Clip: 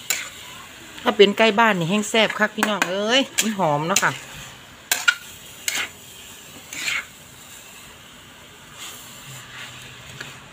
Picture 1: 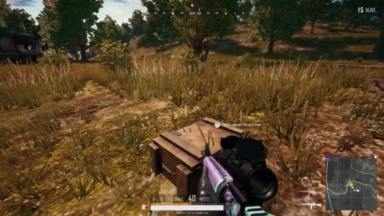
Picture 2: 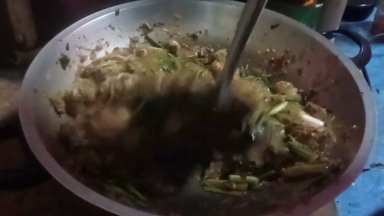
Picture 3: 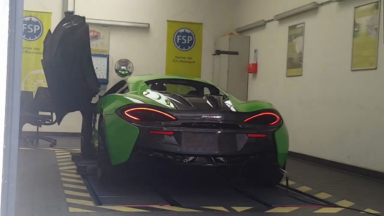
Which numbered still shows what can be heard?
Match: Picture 2